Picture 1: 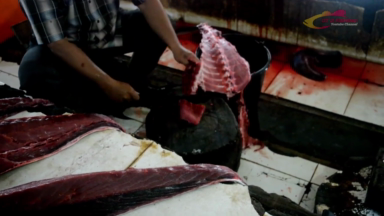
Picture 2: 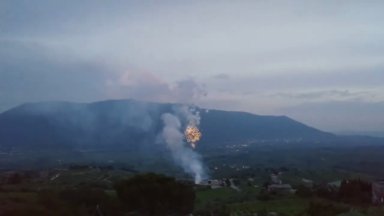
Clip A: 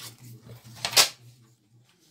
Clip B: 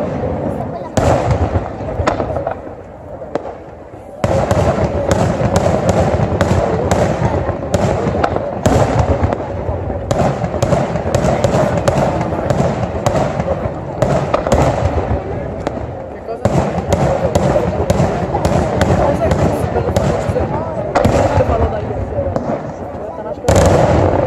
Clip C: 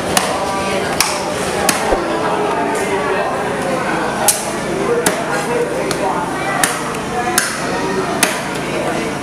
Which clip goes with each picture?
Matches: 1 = C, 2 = B